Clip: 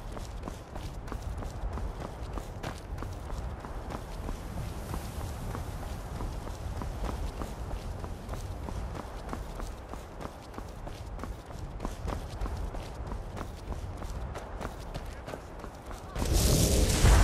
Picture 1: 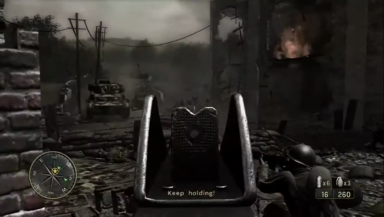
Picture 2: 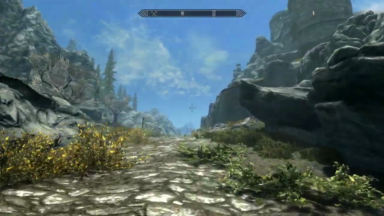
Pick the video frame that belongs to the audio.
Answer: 2